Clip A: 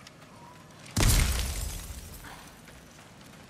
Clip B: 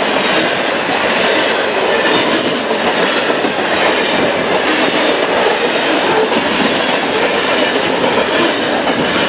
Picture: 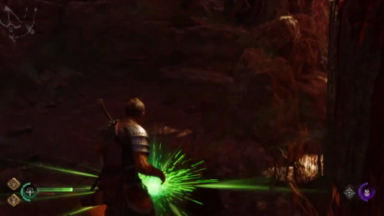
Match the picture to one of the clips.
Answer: A